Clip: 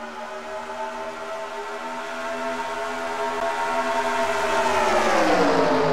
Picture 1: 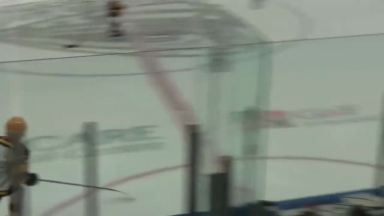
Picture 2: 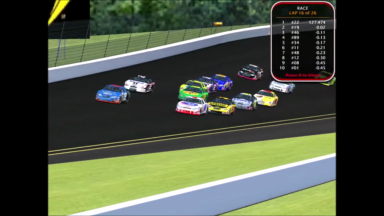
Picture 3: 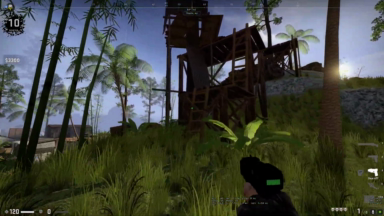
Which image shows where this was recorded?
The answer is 2